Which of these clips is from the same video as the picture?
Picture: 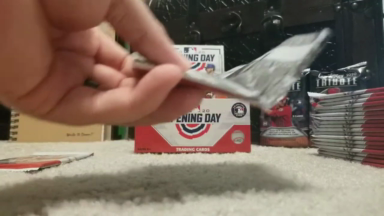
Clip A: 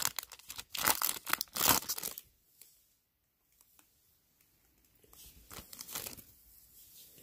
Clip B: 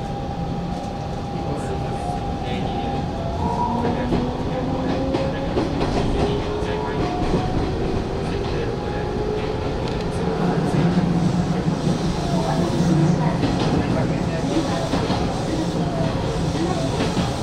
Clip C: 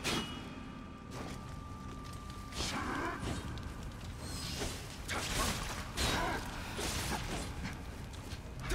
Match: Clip A